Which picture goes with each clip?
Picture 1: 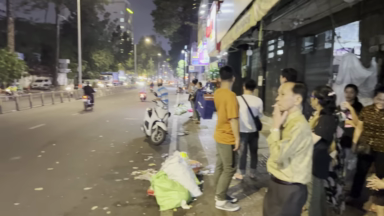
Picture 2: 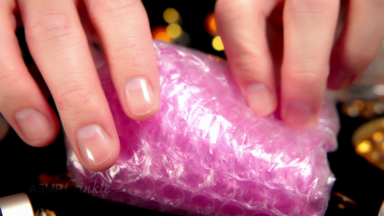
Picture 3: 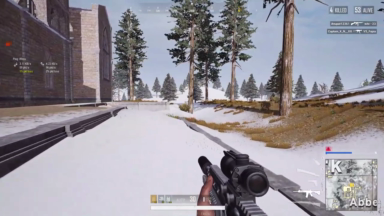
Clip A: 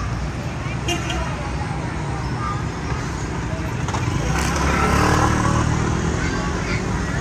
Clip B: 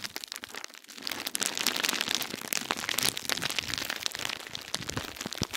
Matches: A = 1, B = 2